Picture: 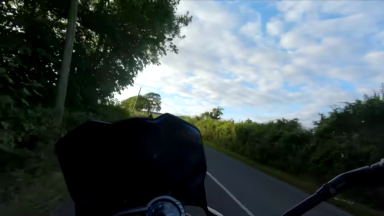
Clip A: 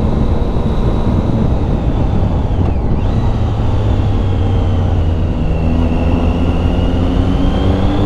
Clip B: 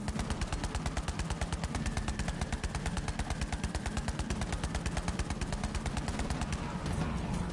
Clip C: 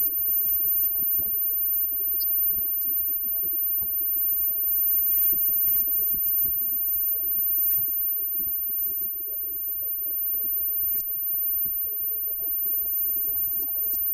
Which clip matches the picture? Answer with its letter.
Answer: A